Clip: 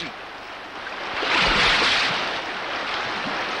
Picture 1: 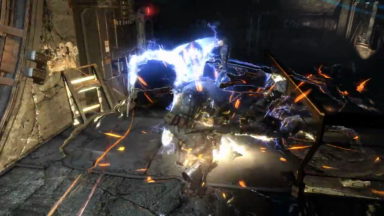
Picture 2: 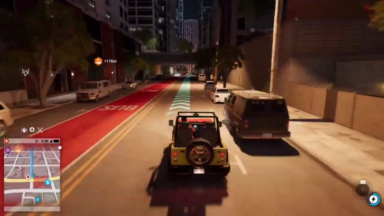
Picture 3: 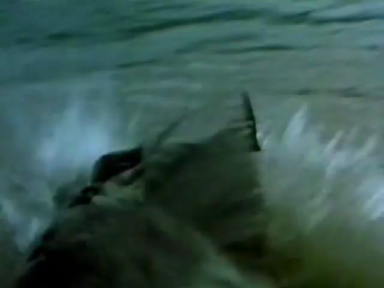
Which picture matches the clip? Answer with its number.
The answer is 3